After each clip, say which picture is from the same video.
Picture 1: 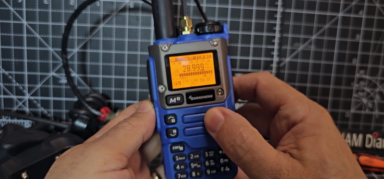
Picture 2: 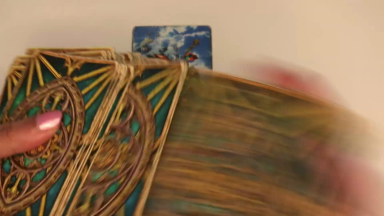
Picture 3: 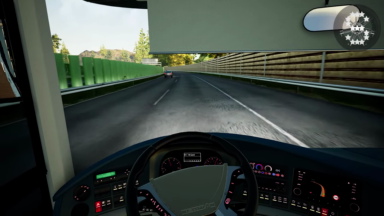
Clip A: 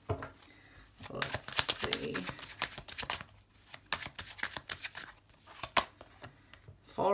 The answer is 2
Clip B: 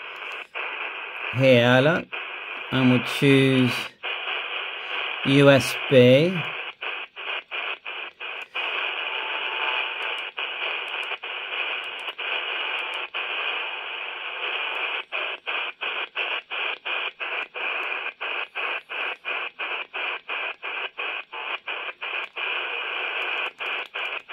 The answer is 1